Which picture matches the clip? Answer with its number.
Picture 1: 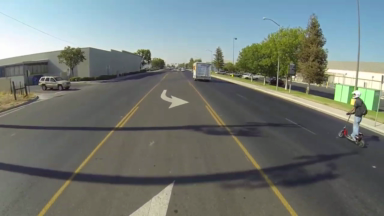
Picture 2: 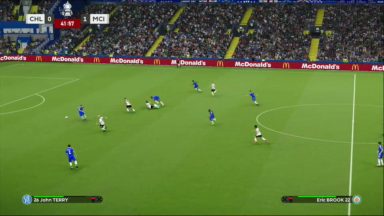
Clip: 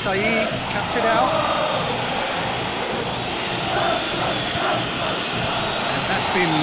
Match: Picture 2